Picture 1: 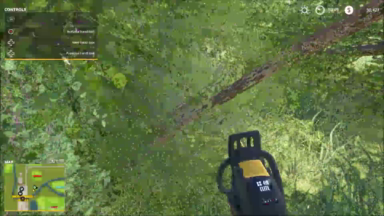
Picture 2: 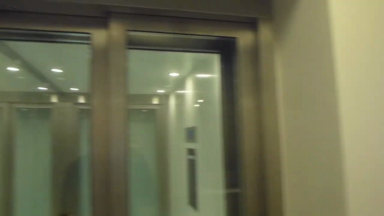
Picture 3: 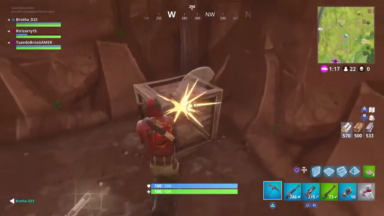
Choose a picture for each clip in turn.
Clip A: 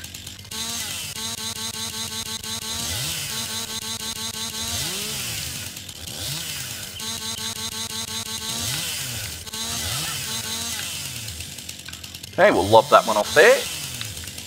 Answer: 1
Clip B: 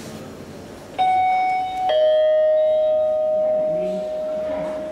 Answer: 2